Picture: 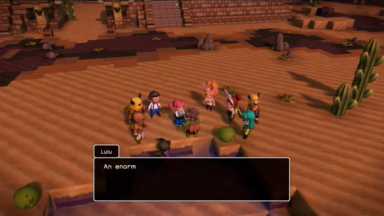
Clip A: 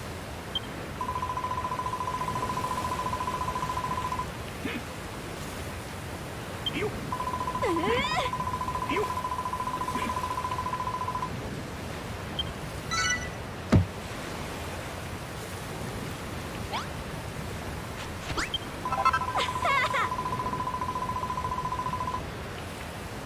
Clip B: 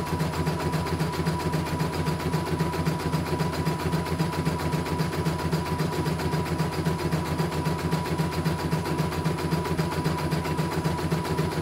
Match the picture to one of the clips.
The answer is A